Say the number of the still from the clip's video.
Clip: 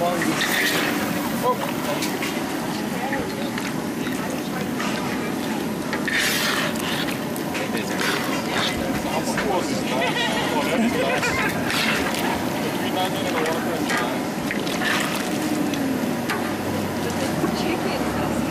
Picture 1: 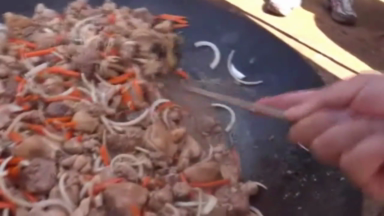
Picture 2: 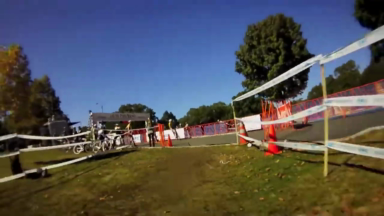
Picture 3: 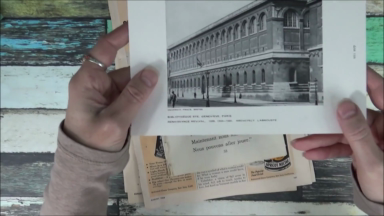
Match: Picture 1